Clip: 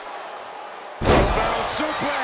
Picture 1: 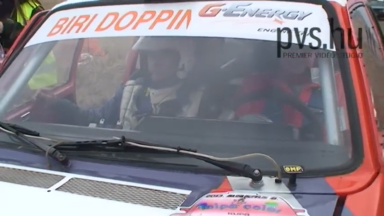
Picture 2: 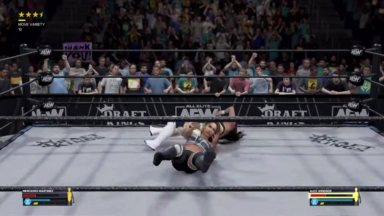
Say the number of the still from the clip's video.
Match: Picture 2